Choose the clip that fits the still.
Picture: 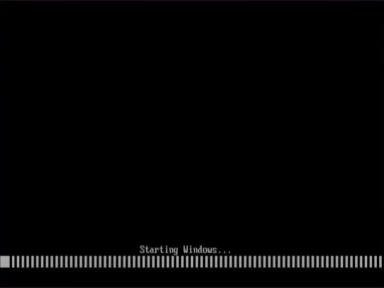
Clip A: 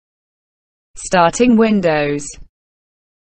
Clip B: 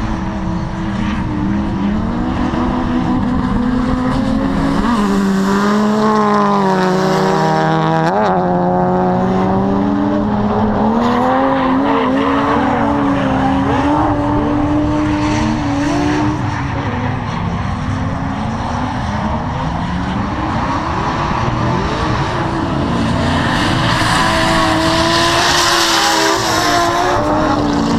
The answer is A